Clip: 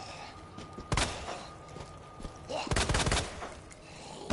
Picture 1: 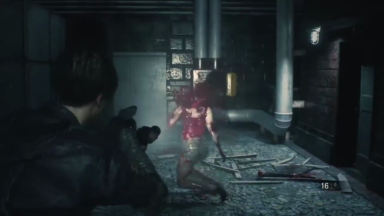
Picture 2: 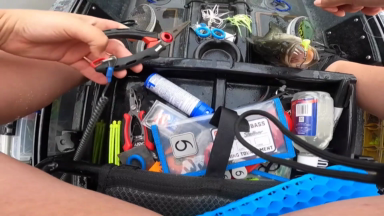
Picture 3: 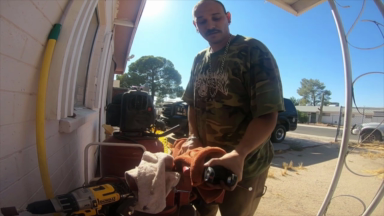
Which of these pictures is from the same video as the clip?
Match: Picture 1